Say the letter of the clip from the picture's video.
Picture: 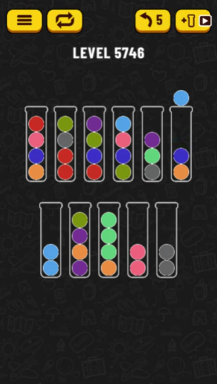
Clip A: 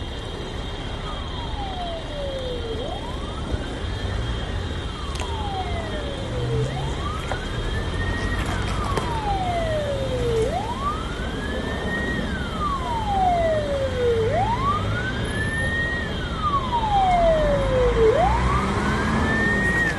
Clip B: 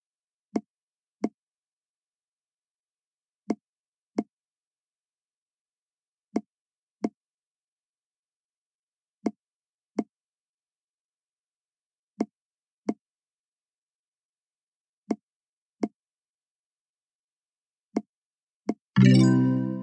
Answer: B